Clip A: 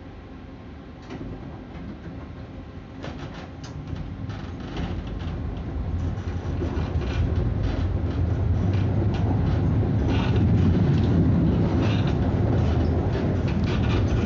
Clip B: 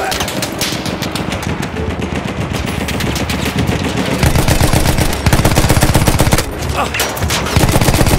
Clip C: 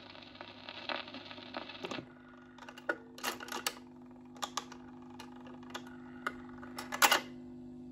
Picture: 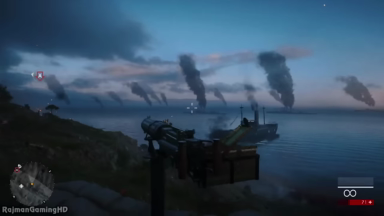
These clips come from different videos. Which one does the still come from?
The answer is B